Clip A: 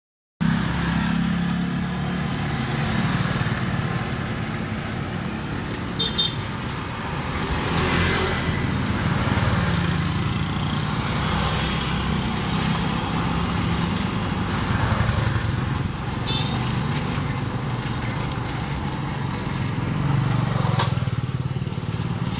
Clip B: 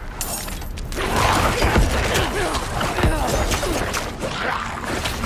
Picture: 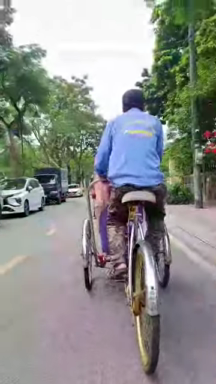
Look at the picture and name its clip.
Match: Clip A